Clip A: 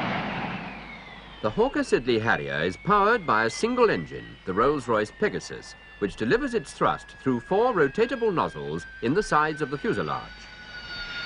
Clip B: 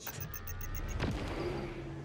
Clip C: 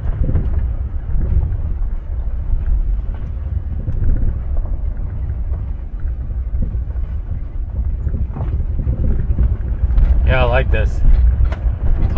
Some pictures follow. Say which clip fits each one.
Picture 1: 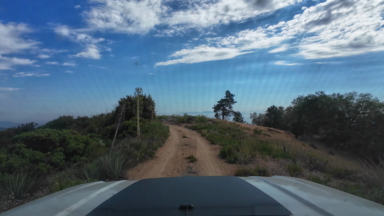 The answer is C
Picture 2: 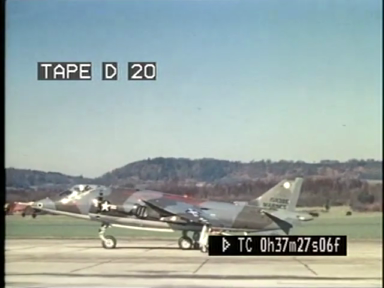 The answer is A